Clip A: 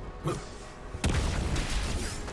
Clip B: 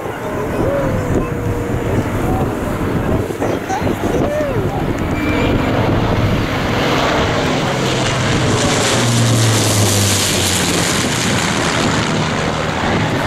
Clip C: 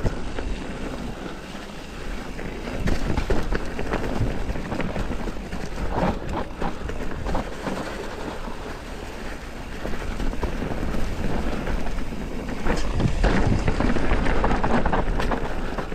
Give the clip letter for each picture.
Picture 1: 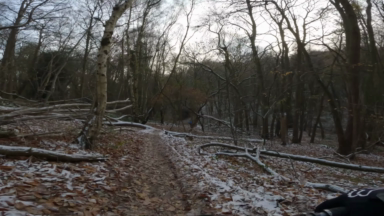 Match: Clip C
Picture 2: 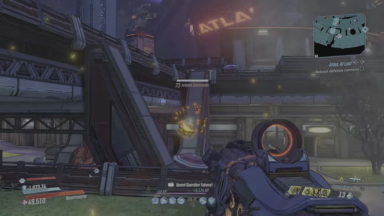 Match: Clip A